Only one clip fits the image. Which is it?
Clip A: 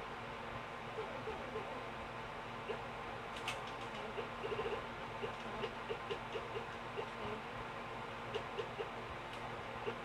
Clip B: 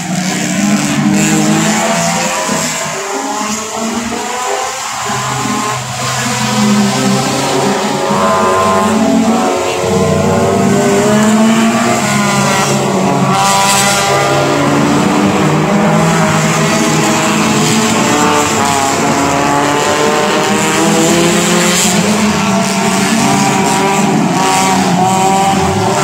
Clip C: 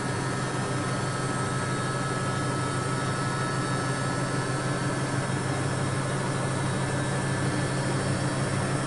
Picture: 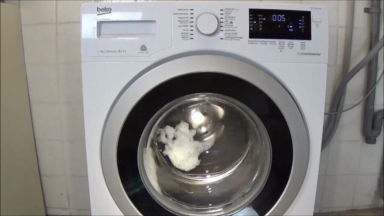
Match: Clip C